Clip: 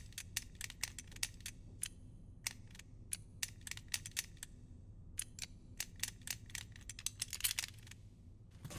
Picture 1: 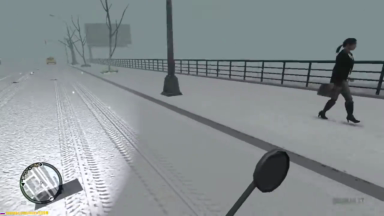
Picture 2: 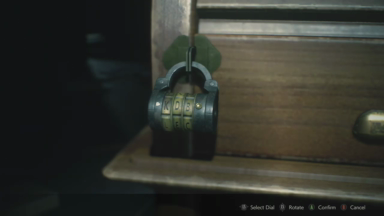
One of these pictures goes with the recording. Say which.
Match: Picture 2